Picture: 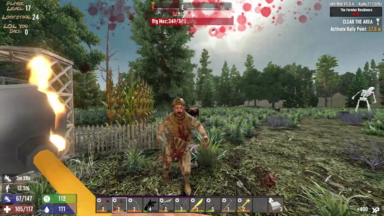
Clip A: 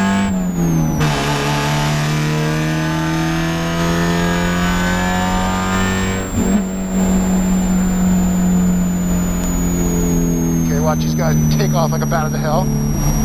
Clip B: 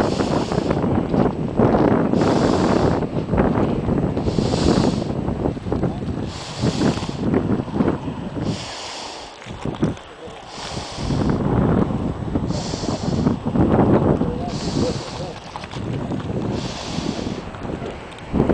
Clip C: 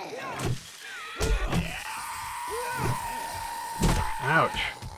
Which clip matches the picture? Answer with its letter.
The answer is C